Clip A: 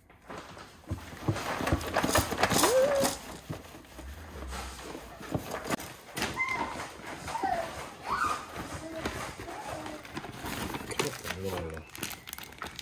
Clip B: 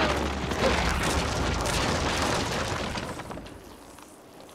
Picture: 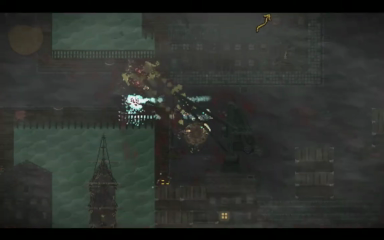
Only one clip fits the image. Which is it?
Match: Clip B